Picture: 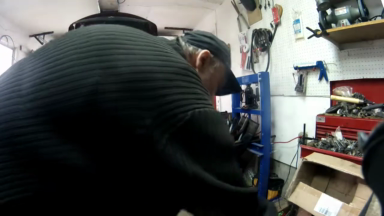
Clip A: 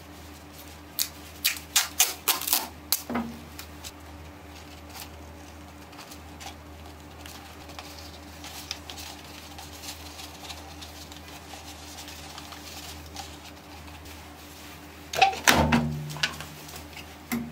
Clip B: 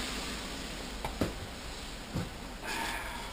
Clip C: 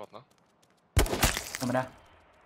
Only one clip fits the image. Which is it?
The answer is B